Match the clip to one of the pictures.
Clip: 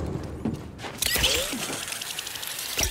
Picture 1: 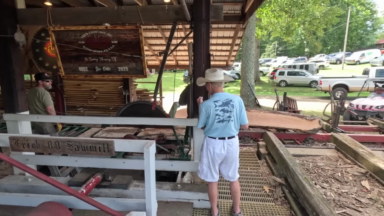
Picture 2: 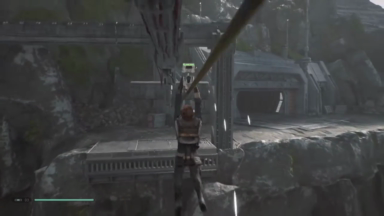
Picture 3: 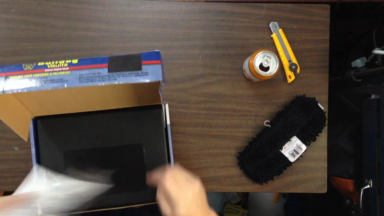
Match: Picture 2